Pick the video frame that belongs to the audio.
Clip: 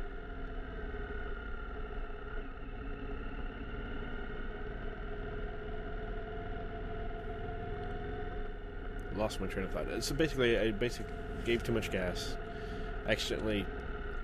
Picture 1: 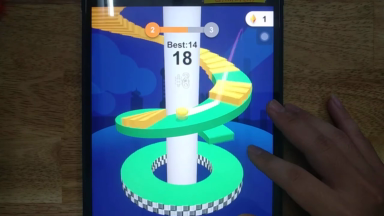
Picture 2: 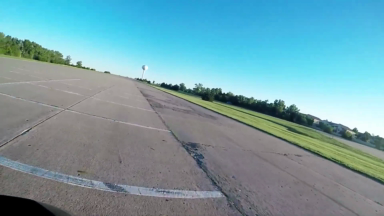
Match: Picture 2